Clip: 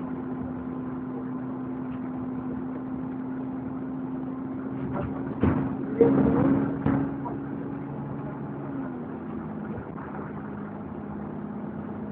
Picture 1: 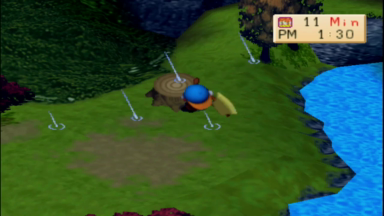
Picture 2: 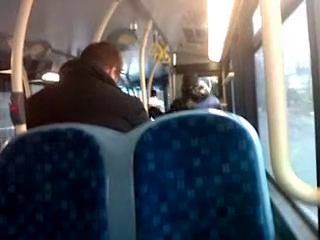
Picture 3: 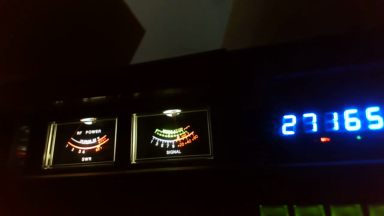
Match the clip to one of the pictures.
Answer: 2